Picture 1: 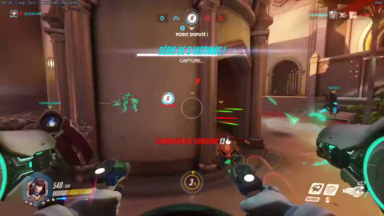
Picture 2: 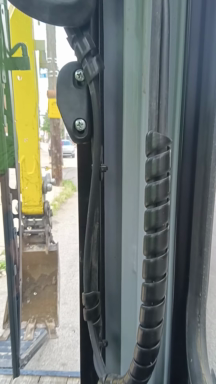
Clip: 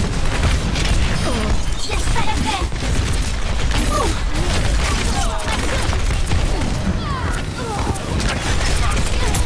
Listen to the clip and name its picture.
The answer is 1